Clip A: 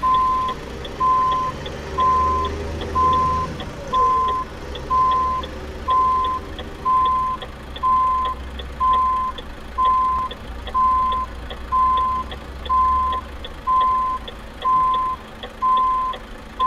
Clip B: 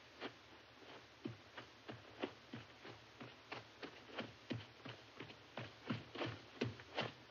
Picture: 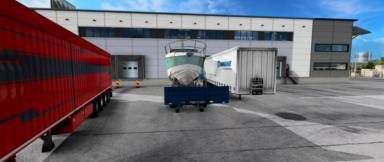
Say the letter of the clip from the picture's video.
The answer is A